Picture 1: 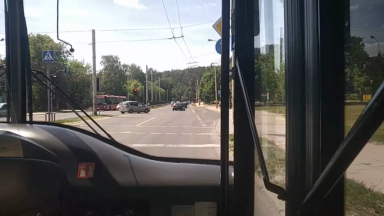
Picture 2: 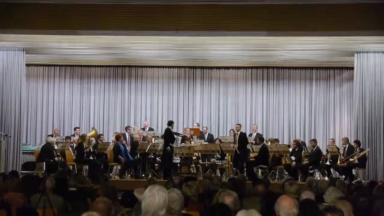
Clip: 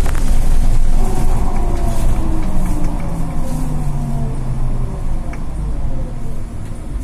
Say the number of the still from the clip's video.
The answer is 1